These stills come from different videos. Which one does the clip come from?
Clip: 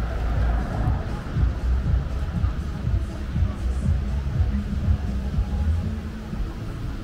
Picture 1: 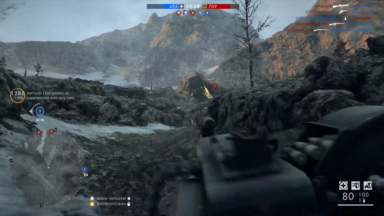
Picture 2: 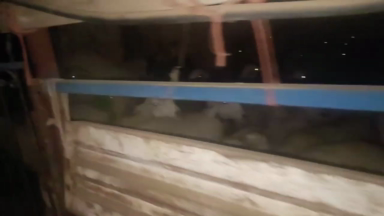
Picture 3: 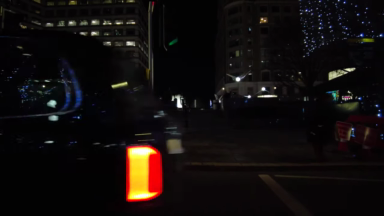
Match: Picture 3